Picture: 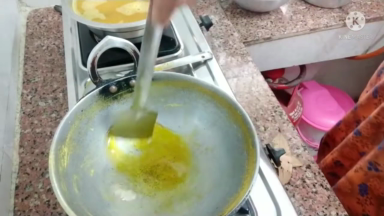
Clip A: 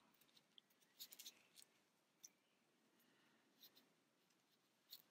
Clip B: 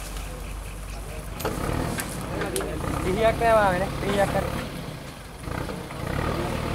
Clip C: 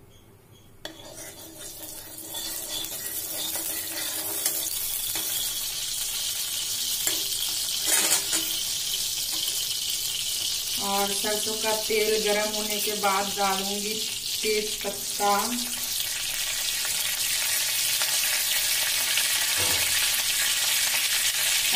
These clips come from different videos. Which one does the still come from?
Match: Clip C